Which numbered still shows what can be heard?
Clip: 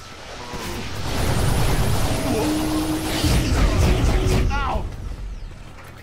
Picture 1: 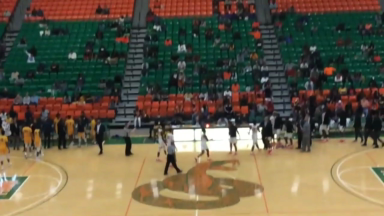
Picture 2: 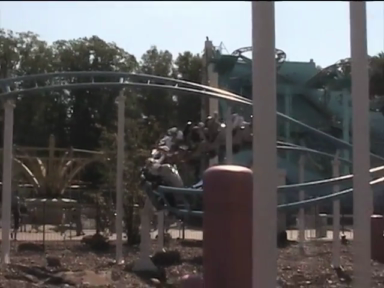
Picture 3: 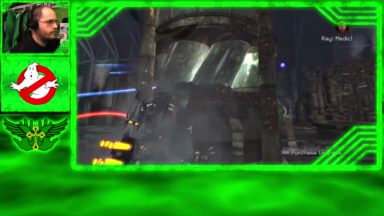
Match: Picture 3